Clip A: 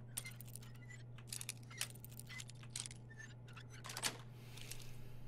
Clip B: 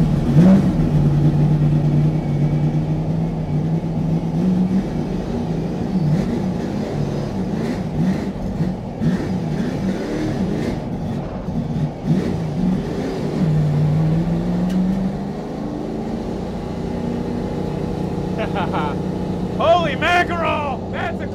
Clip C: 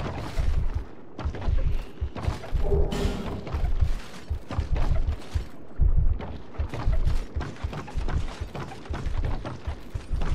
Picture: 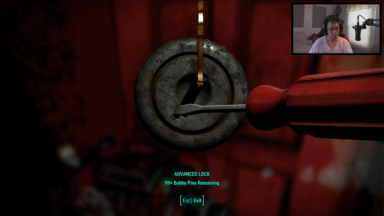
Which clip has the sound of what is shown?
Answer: A